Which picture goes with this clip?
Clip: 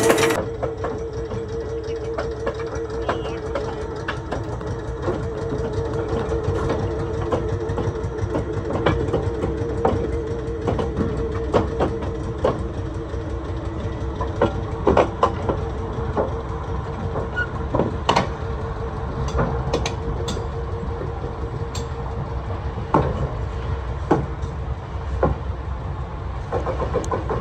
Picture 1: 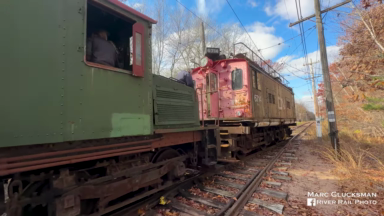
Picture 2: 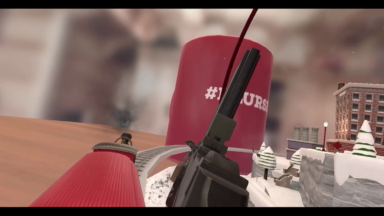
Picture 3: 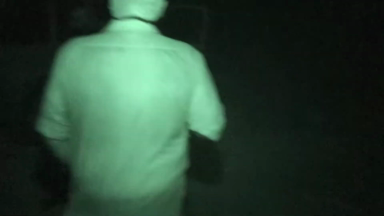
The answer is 1